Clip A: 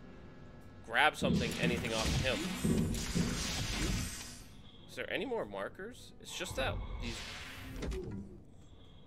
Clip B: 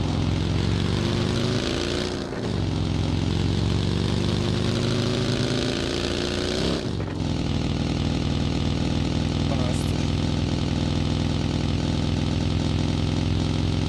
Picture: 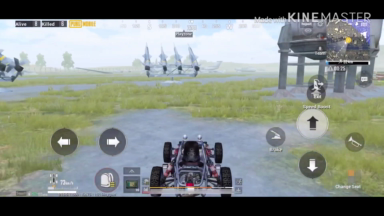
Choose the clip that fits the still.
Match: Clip B